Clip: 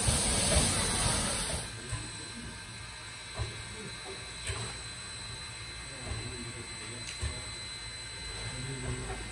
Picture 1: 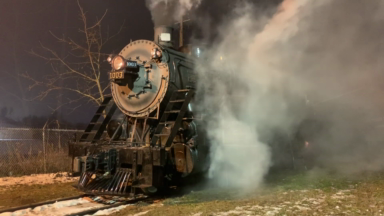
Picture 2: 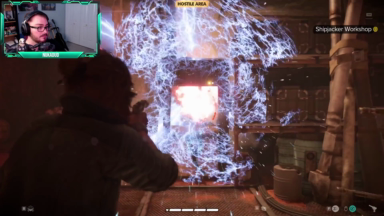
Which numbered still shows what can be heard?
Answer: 1